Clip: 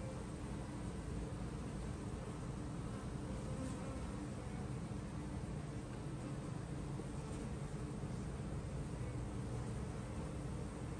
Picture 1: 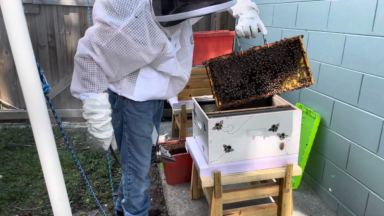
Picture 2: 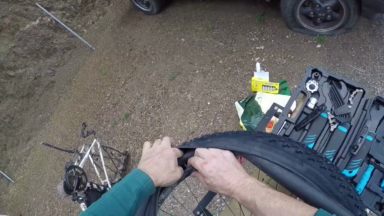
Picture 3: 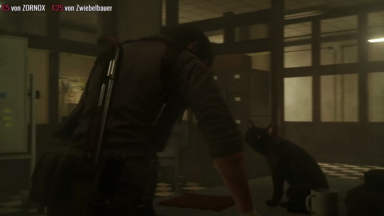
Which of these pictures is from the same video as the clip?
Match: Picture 1